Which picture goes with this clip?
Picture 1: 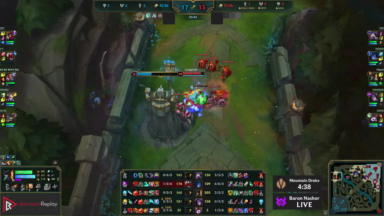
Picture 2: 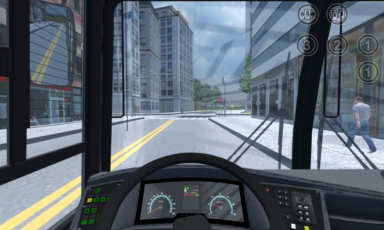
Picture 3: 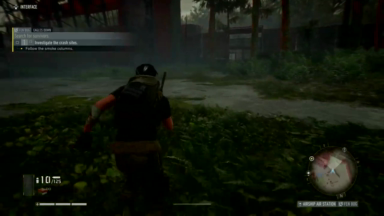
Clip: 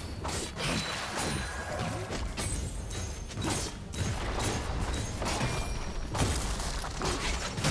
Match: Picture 1